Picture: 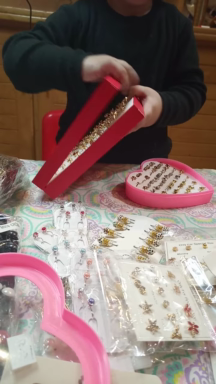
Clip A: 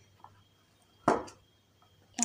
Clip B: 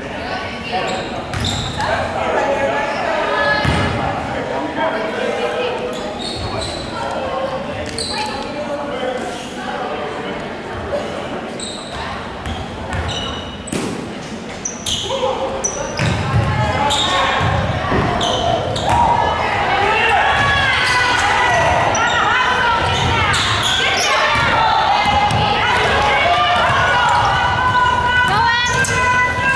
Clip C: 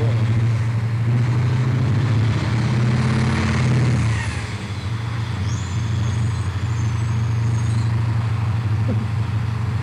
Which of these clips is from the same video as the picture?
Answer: A